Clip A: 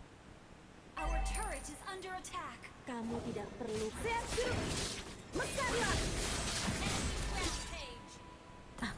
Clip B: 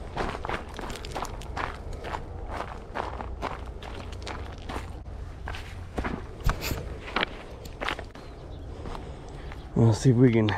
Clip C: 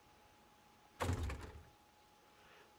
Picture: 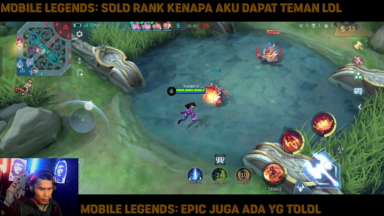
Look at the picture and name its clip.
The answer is A